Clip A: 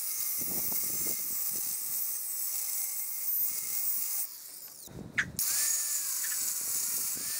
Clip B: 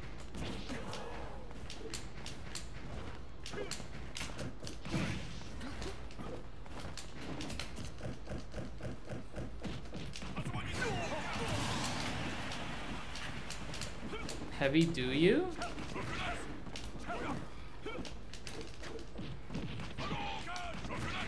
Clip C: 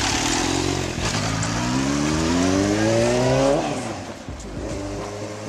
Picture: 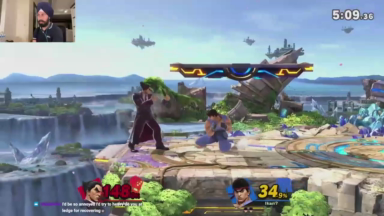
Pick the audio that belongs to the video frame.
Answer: B